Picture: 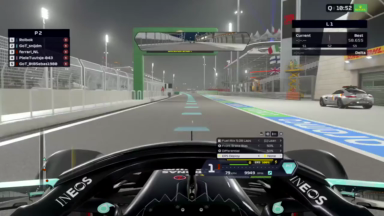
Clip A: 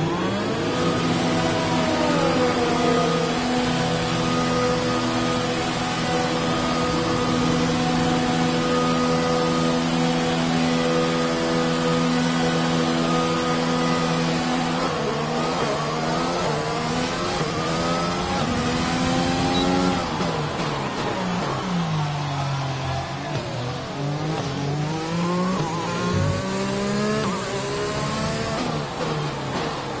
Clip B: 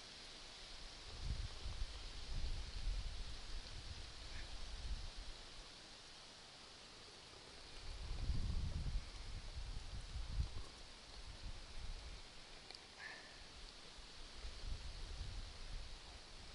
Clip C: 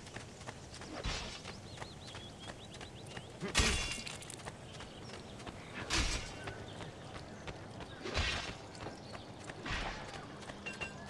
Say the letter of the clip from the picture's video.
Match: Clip A